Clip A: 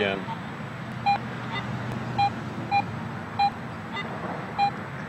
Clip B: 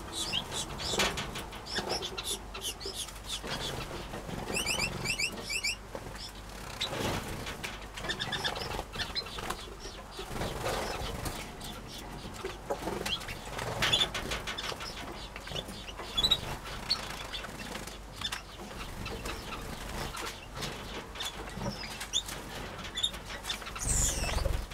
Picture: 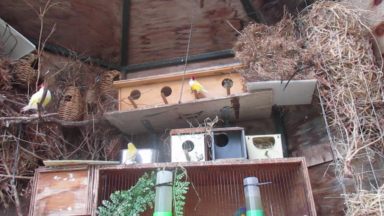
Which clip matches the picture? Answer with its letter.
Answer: B